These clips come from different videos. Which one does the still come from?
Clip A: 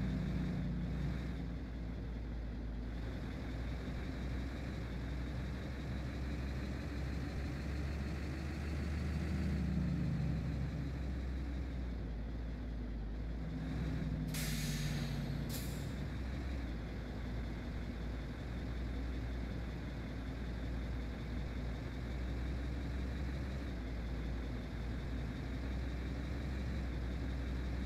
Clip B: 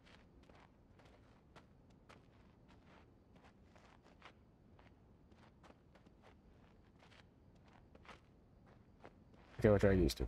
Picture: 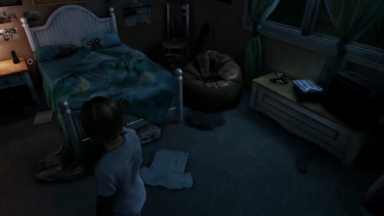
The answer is B